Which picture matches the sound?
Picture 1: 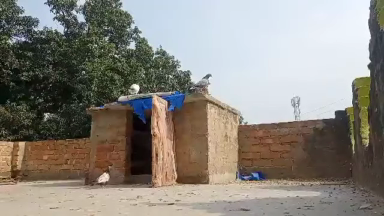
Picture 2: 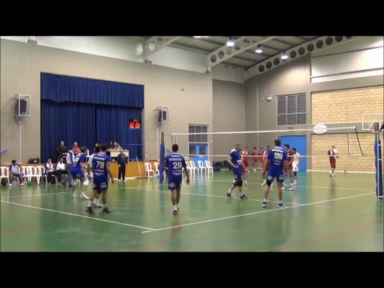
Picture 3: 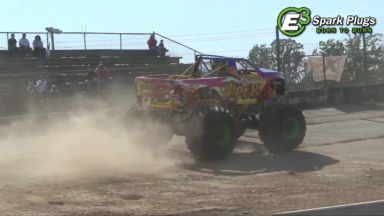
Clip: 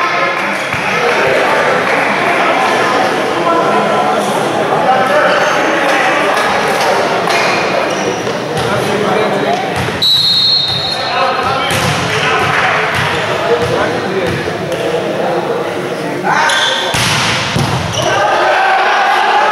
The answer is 2